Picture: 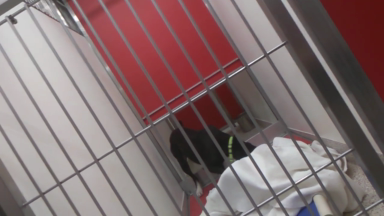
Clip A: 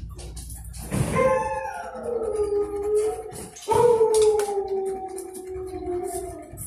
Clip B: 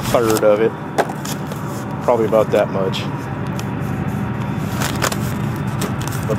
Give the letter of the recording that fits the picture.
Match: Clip A